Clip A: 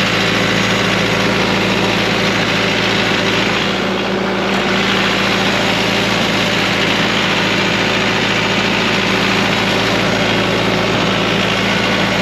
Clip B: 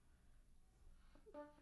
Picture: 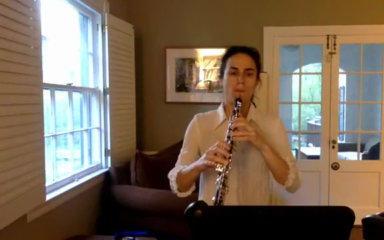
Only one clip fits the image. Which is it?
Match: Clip B